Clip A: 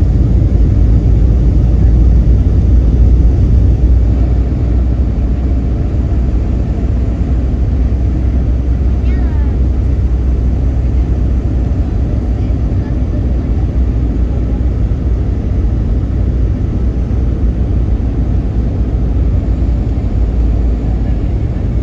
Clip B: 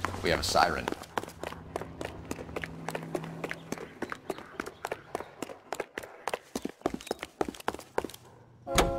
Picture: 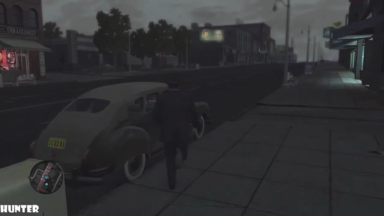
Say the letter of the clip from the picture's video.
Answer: B